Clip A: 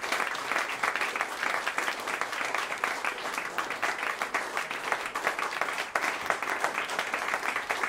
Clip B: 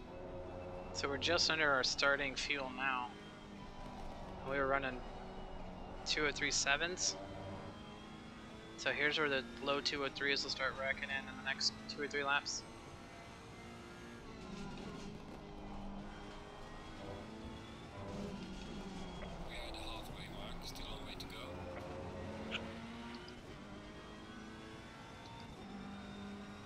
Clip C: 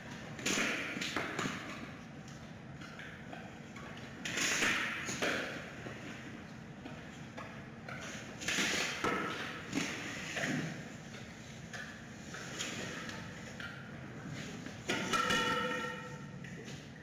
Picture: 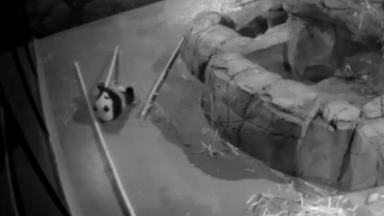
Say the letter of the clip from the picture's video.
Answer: C